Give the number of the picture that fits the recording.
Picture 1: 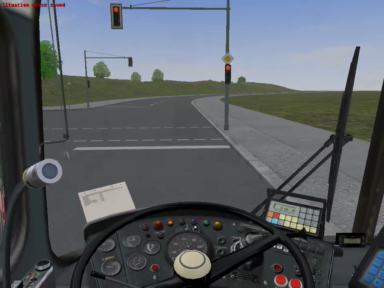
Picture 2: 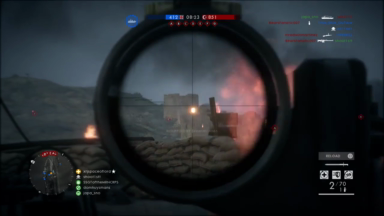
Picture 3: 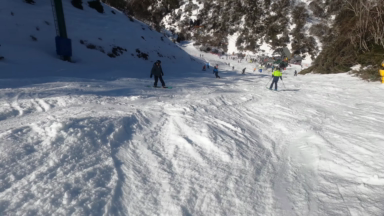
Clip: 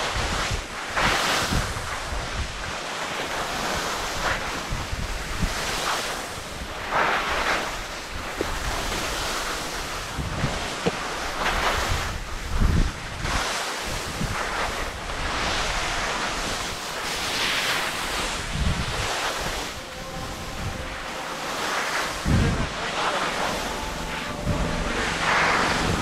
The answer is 3